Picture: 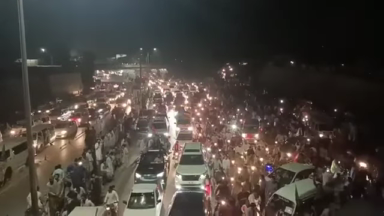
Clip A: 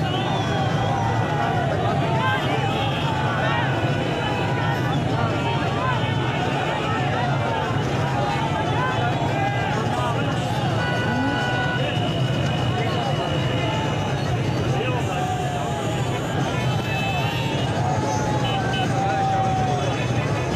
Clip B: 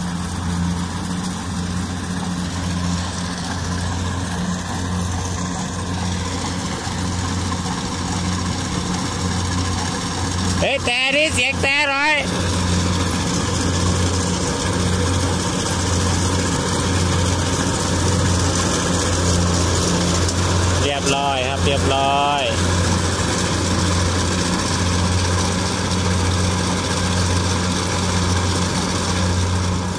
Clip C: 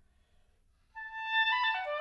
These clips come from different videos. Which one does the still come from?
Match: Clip A